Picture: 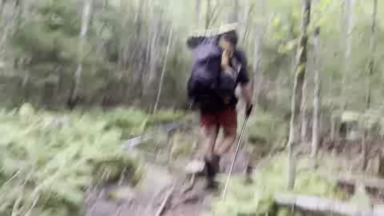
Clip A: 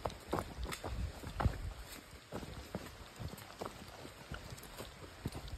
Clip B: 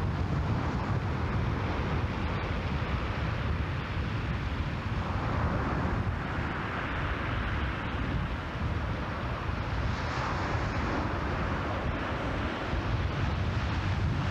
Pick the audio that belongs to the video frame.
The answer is A